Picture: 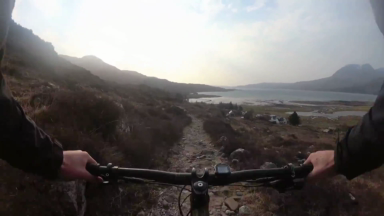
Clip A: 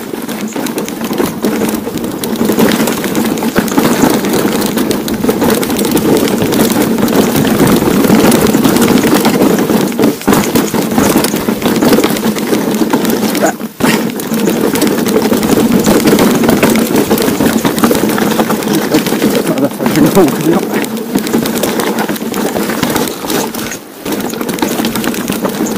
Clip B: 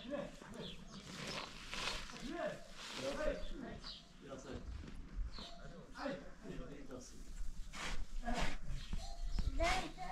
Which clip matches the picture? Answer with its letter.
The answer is A